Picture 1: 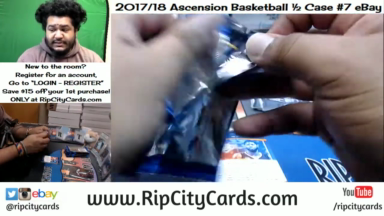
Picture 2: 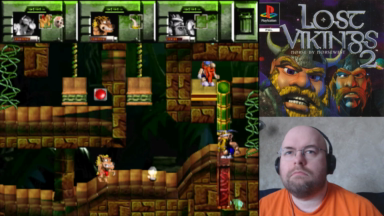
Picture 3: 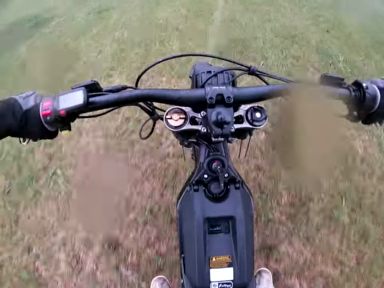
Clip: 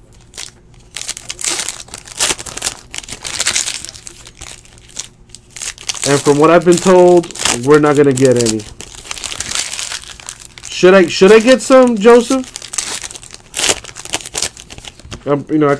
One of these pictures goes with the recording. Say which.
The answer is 1